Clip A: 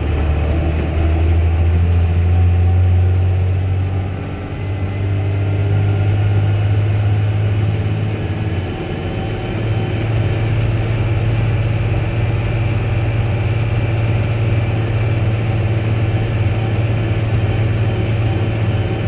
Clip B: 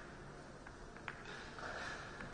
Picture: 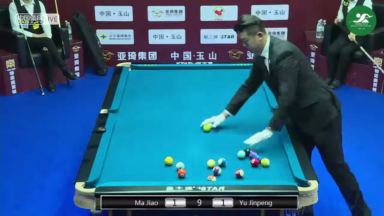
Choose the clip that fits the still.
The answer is B